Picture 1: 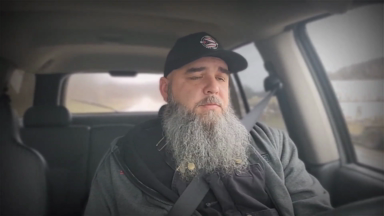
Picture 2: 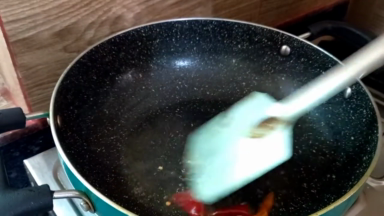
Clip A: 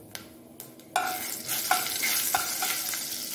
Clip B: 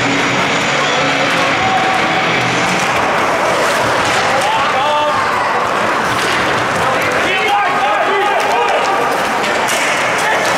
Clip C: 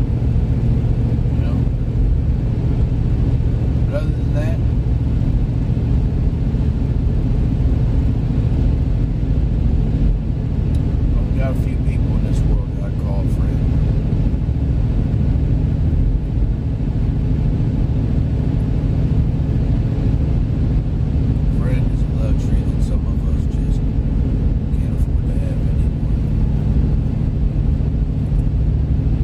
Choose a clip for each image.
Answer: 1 C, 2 A